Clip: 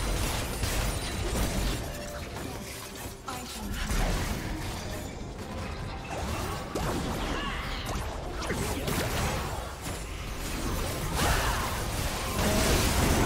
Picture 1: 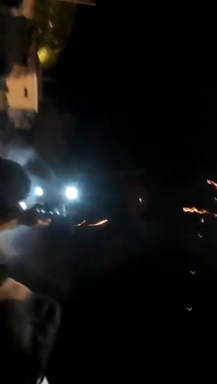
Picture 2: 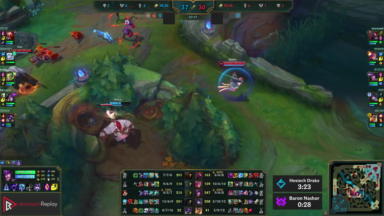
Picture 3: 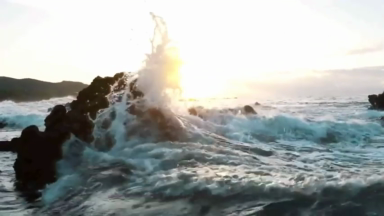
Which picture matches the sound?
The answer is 2